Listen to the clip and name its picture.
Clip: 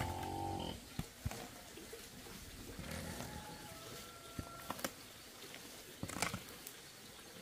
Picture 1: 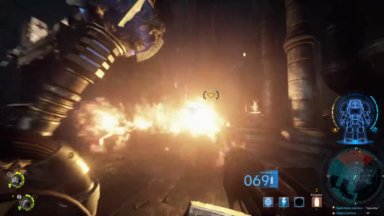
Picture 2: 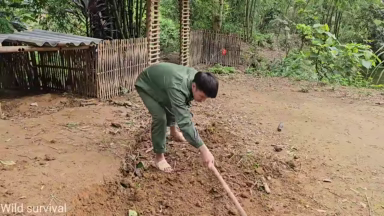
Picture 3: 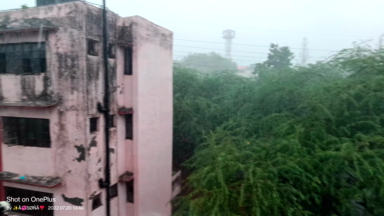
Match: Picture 2